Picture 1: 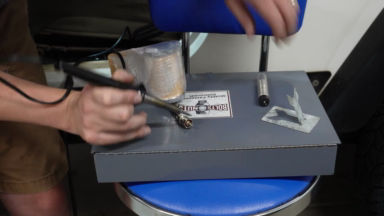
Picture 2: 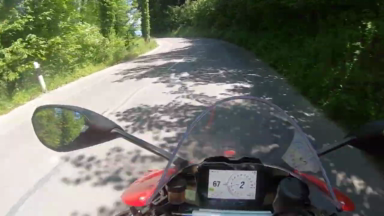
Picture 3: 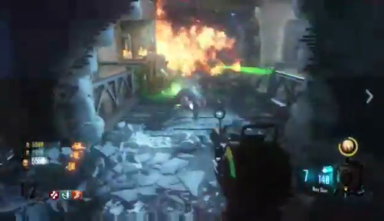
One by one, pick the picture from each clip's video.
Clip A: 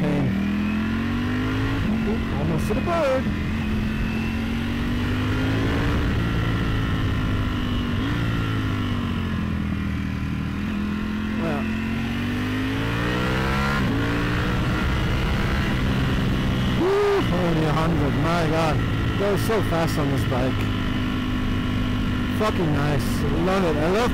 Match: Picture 2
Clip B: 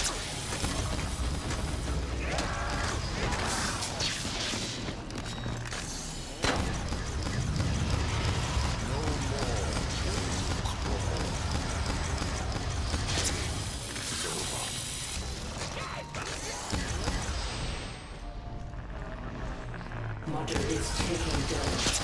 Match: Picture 3